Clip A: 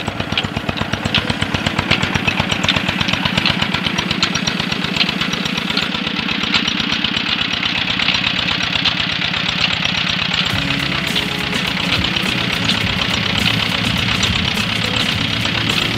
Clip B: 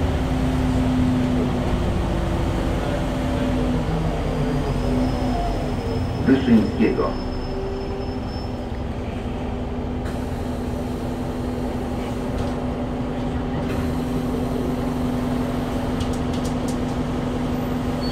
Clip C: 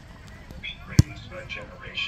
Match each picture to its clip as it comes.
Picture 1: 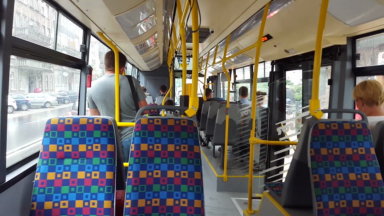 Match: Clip B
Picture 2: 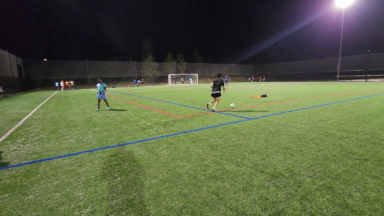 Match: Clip C